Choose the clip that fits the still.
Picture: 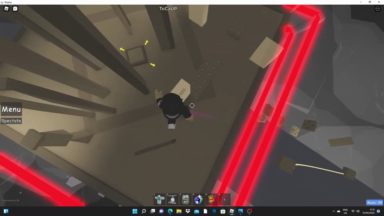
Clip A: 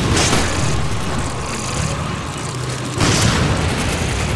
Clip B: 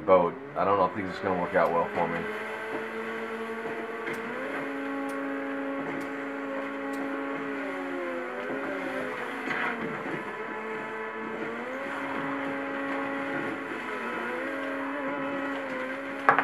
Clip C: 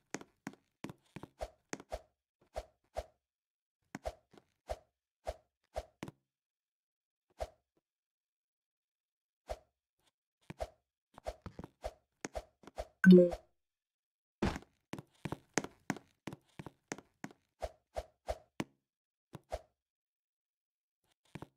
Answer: C